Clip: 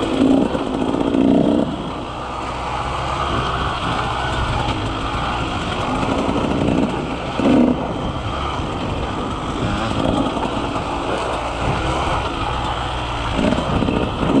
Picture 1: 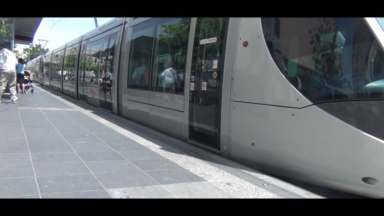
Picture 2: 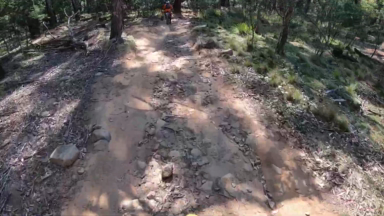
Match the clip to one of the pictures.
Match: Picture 2